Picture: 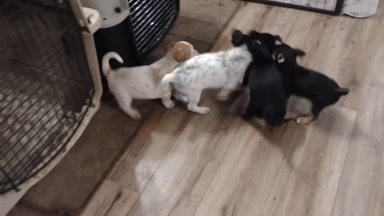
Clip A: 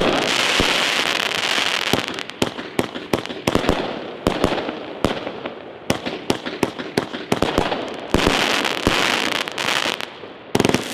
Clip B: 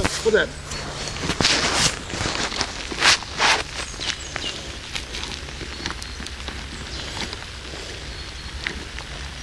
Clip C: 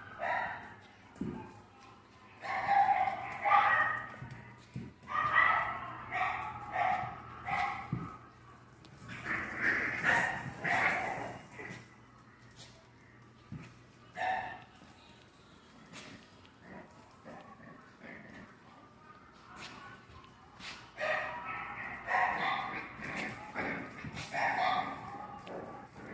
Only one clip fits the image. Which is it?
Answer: C